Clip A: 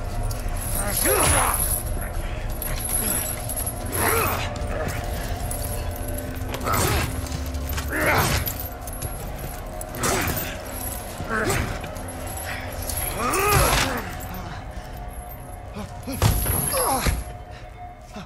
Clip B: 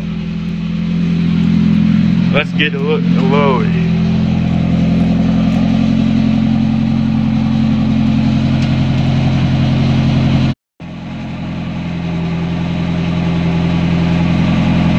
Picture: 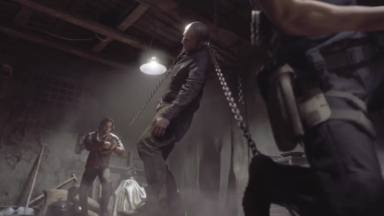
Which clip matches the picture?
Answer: A